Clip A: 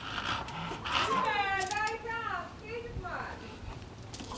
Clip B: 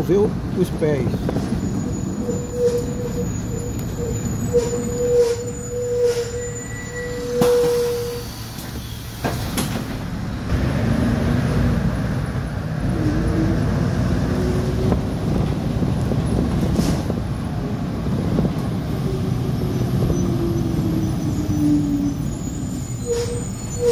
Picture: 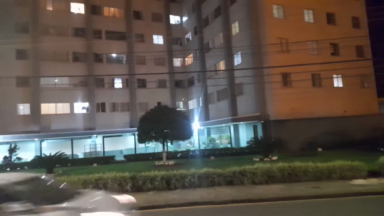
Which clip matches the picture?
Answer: B